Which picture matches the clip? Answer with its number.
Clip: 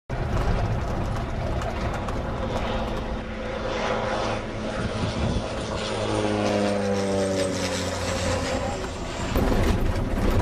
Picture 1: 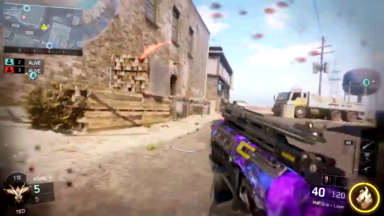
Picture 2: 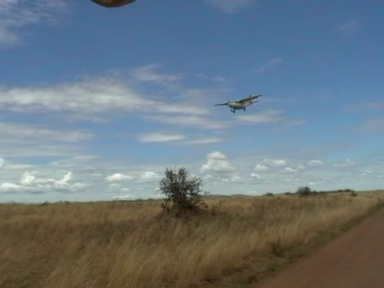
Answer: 2